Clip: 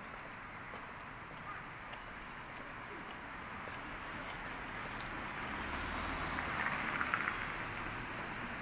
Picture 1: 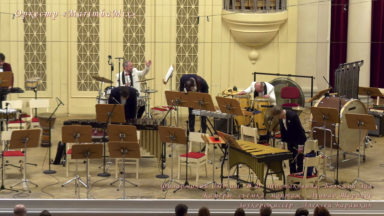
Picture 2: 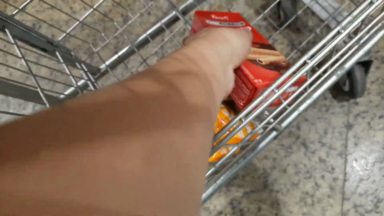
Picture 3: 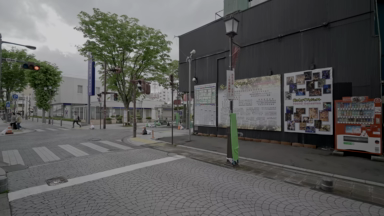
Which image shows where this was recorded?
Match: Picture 3